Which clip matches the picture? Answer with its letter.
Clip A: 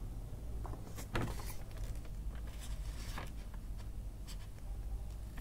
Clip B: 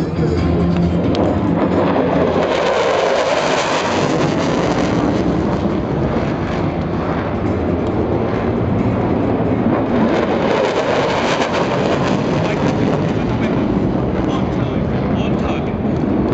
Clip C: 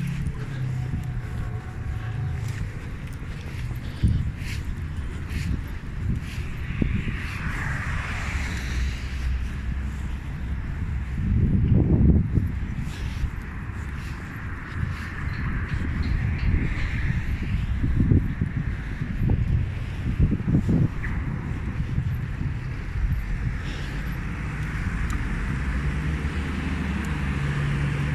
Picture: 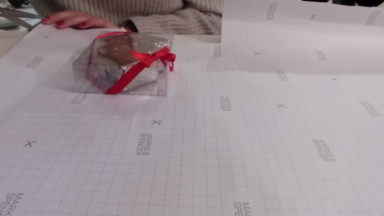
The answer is A